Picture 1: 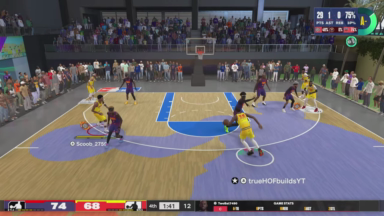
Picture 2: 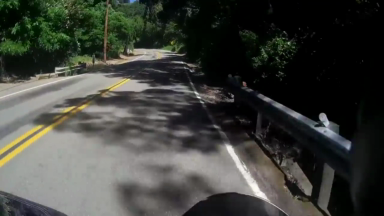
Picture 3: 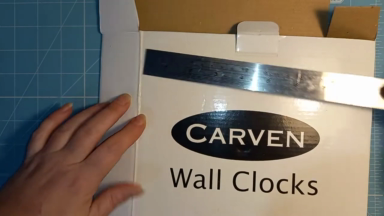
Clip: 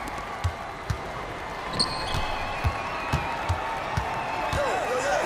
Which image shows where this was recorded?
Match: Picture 1